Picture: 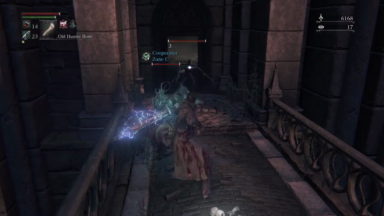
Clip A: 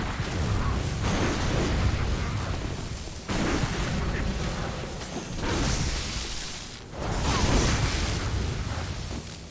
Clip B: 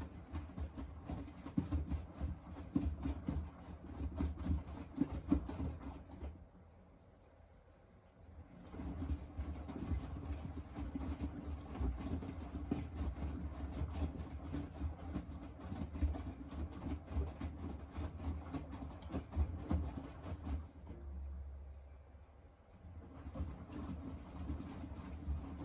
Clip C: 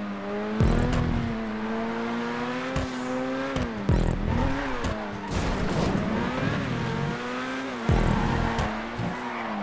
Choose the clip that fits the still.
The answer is A